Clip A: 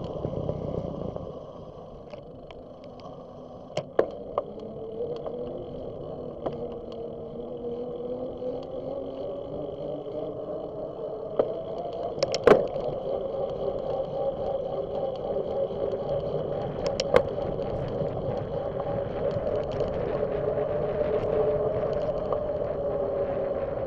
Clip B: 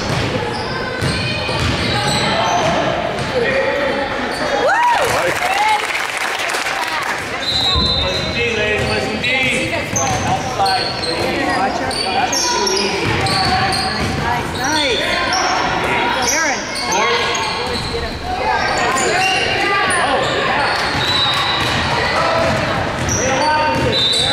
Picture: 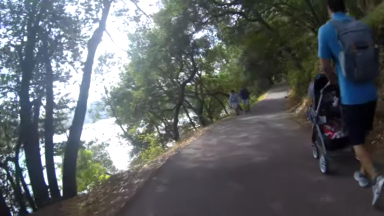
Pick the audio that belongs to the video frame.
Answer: A